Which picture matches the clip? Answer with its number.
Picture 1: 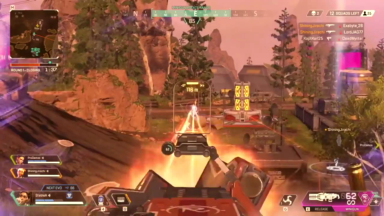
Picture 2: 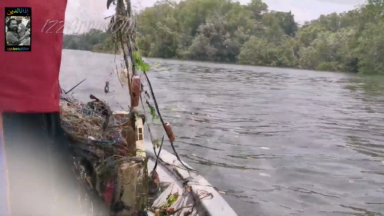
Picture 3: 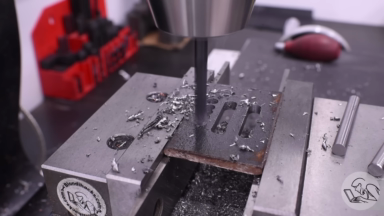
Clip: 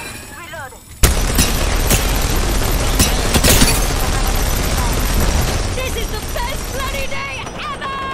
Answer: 1